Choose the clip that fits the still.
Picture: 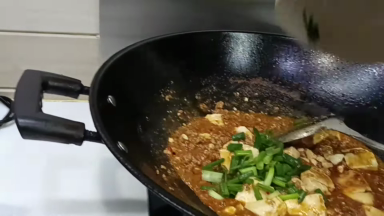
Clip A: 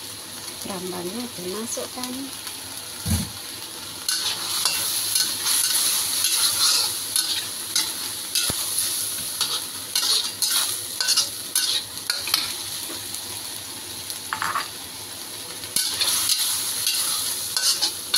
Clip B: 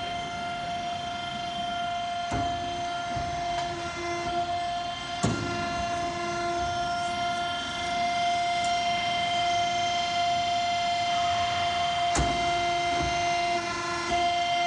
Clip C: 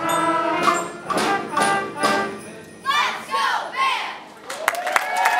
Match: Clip A